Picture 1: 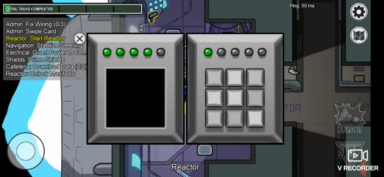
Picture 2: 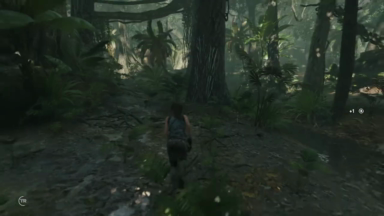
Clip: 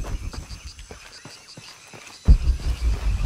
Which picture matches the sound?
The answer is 2